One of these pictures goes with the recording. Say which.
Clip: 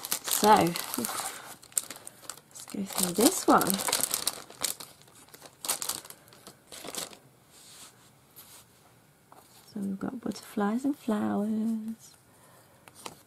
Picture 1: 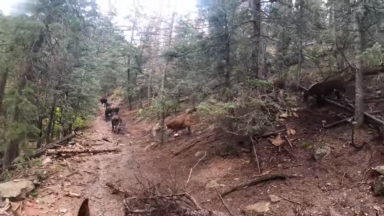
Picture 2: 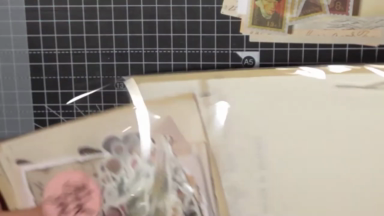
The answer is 2